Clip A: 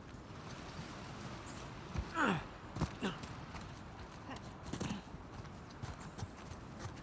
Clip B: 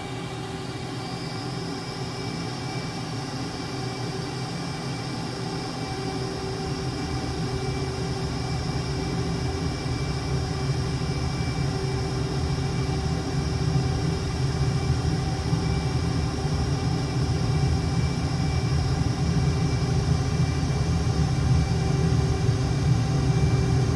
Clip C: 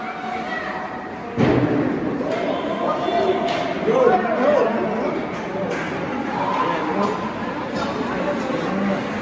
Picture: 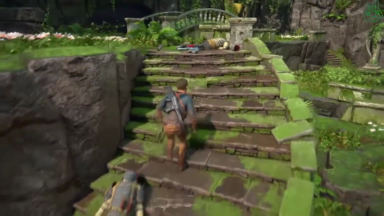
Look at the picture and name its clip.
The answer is A